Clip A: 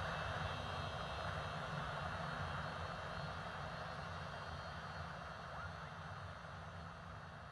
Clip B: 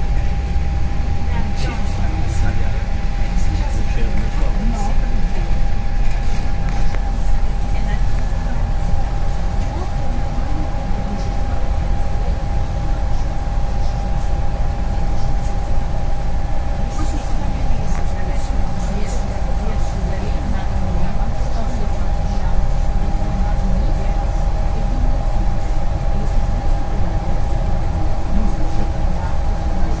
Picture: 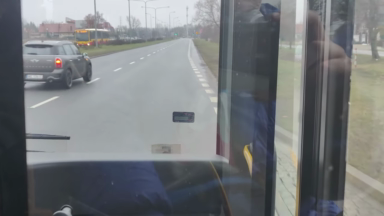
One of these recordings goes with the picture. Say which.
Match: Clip B